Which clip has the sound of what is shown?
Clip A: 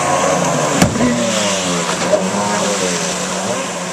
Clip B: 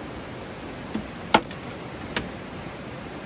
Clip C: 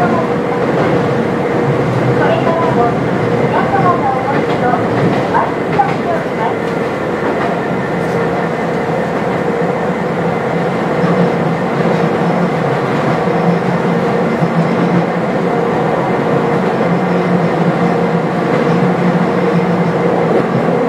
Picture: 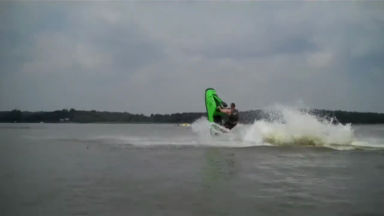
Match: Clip A